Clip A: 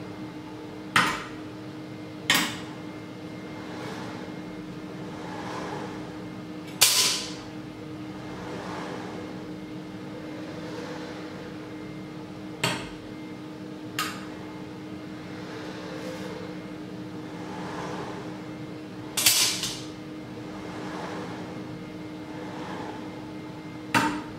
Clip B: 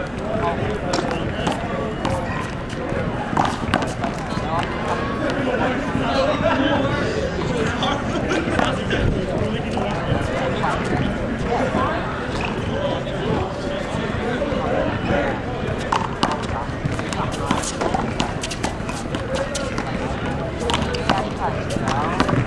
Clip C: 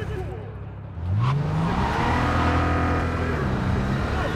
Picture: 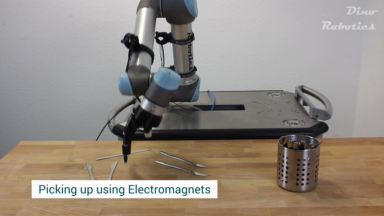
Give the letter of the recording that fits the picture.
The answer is A